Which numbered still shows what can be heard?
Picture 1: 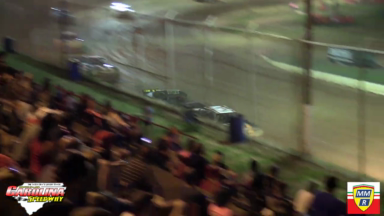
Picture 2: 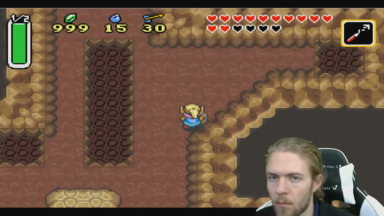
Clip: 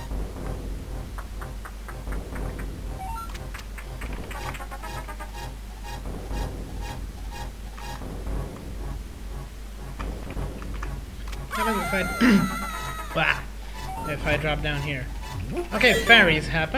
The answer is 2